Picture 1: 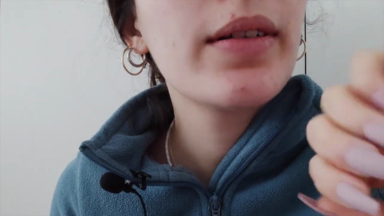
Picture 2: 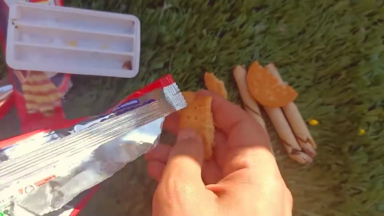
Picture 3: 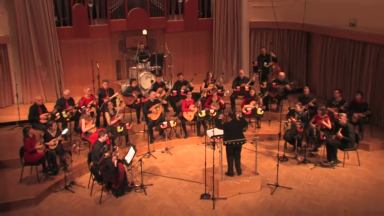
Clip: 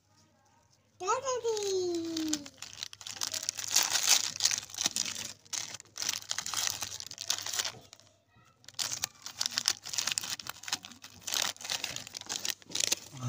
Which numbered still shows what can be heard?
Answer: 2